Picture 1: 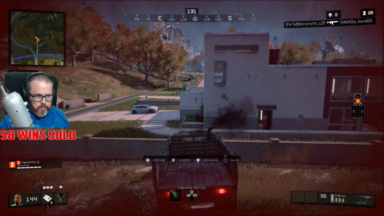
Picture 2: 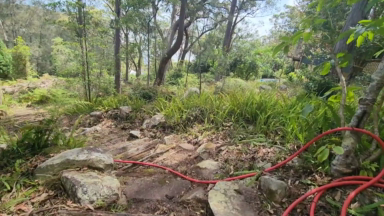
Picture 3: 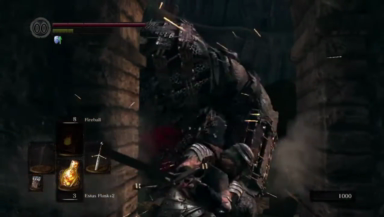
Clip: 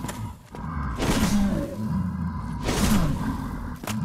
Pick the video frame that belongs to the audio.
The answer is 3